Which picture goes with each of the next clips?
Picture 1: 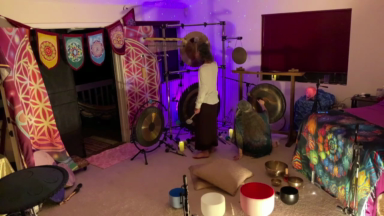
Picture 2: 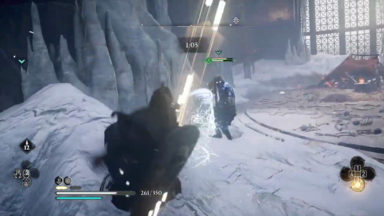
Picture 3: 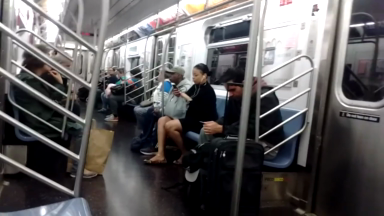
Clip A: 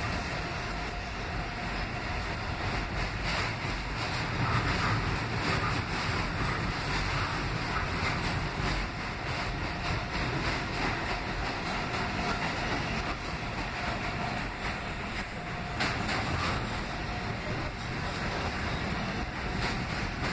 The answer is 3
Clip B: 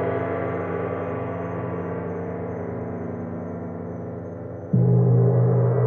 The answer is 1